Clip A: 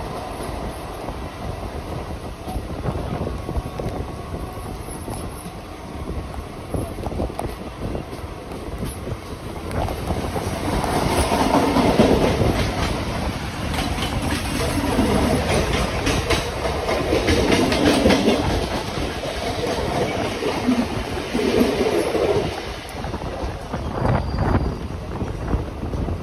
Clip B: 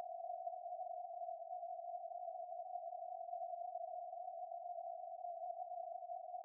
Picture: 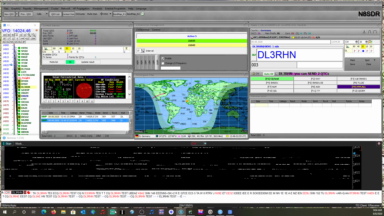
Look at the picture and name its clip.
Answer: B